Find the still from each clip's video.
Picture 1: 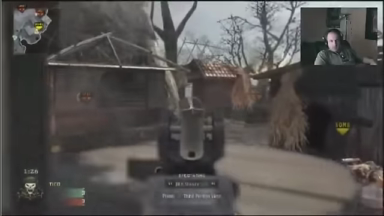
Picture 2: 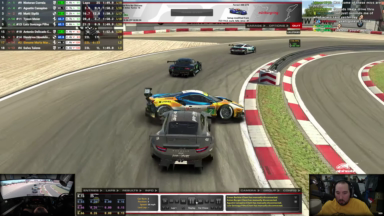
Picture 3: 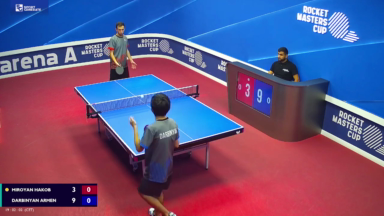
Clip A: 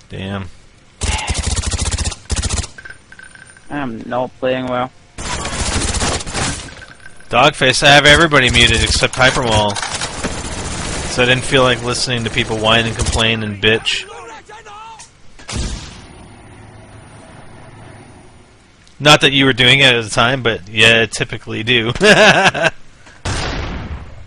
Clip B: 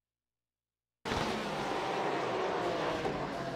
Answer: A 1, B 2